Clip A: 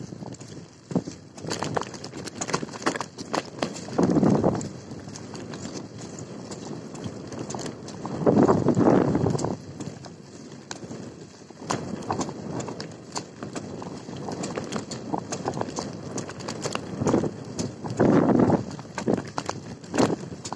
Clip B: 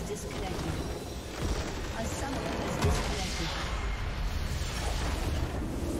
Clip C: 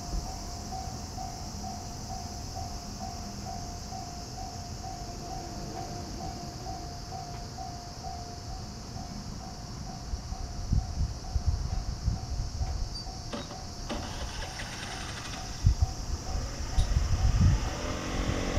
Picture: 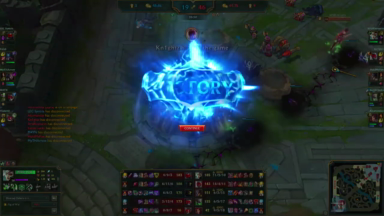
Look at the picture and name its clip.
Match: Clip B